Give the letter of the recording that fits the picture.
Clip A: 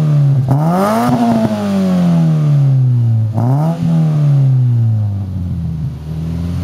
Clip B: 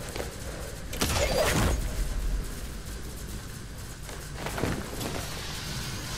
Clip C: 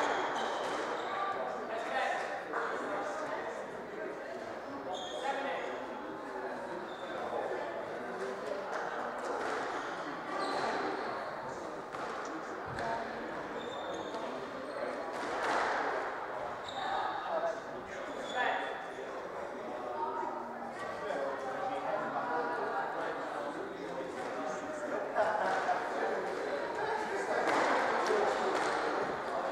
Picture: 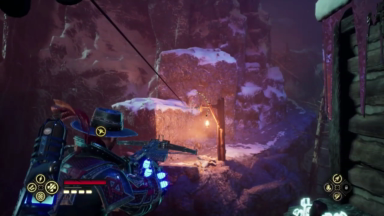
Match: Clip B